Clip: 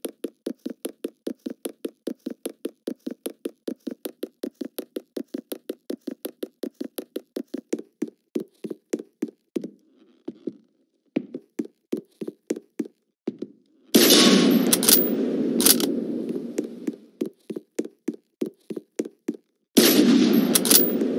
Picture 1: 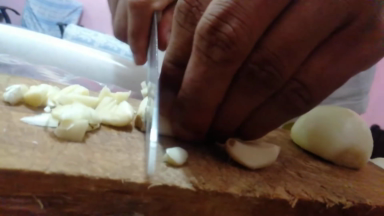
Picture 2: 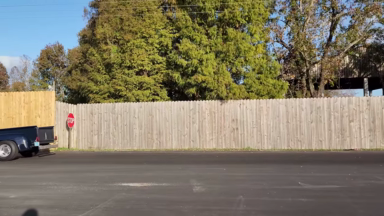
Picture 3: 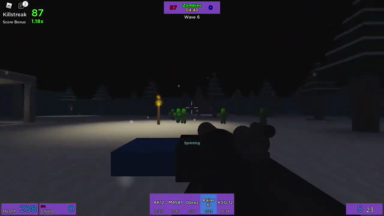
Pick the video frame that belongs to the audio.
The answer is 3